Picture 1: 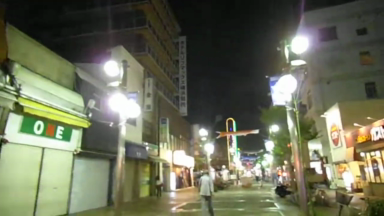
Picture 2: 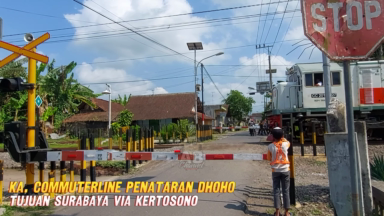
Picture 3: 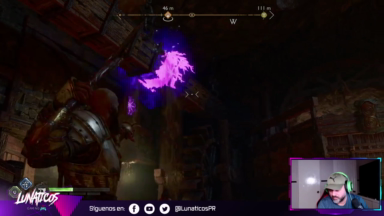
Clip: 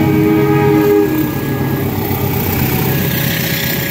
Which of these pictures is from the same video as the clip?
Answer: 2